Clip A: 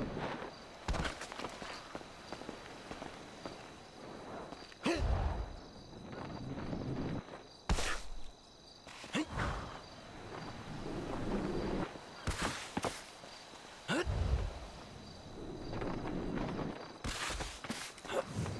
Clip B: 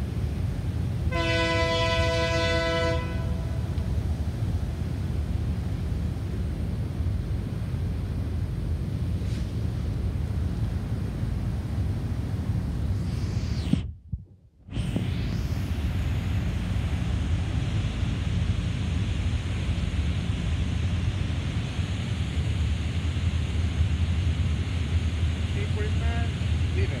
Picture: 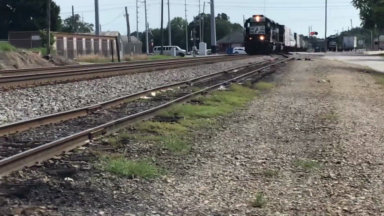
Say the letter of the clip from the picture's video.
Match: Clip B